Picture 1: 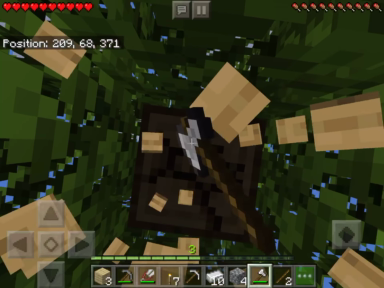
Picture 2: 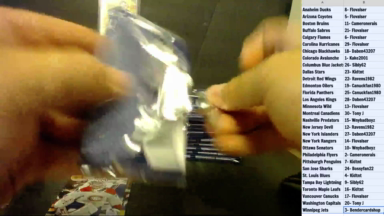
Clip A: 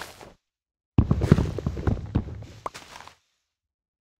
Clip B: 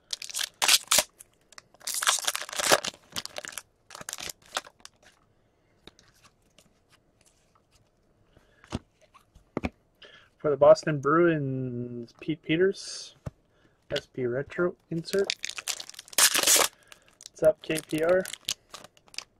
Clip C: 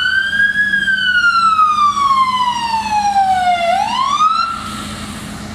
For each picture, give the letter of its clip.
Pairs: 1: A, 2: B